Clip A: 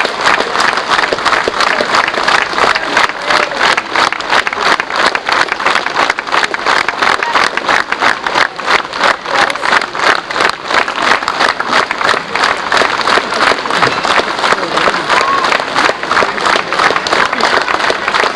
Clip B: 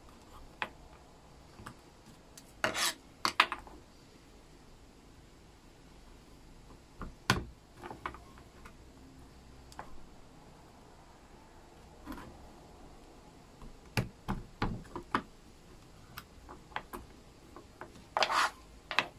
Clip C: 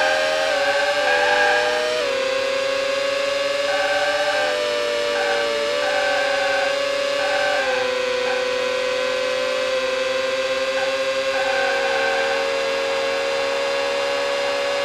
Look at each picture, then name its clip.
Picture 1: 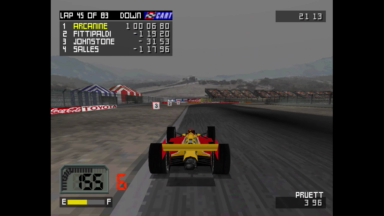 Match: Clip C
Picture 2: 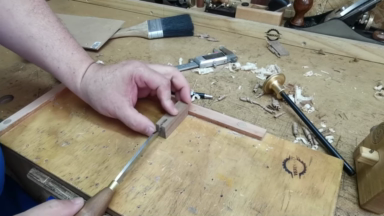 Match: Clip B